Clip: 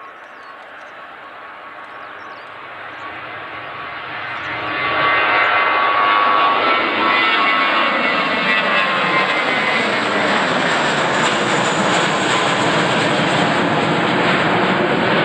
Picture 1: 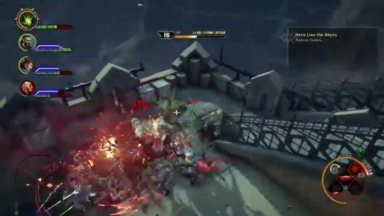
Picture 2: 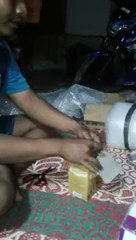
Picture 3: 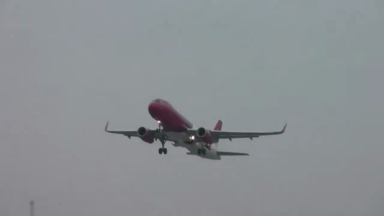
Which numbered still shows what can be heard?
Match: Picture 3